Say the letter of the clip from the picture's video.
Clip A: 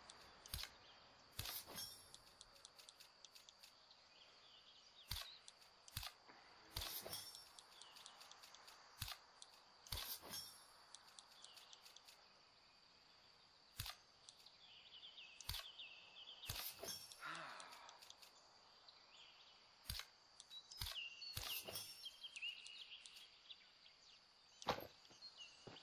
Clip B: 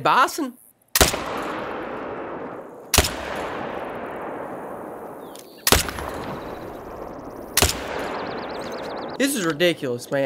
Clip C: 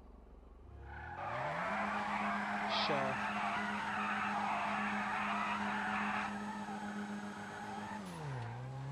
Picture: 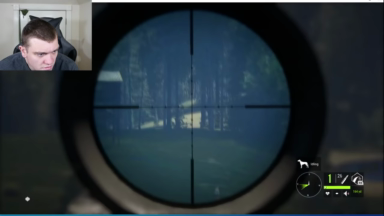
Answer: B